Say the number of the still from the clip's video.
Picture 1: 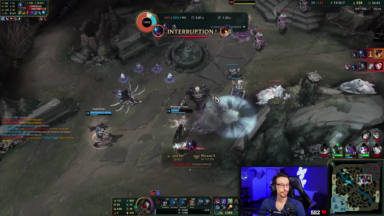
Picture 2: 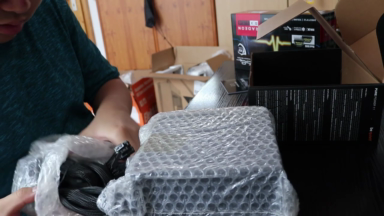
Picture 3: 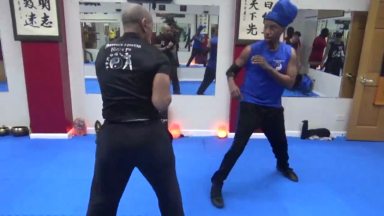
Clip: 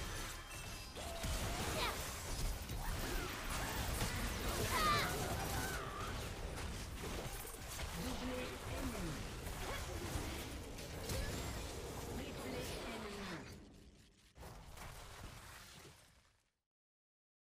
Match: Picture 1